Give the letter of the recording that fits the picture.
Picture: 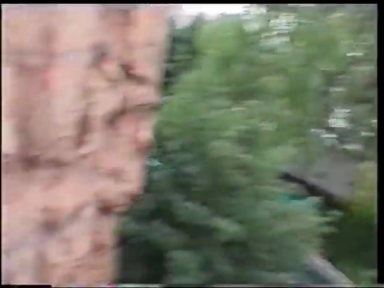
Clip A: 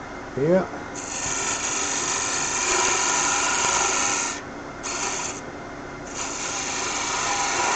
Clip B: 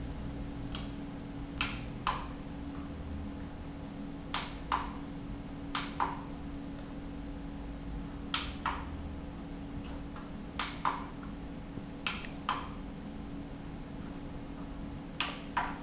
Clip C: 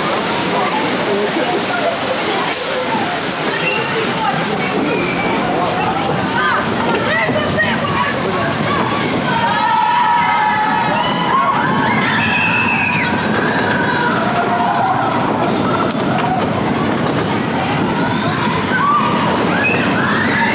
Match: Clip C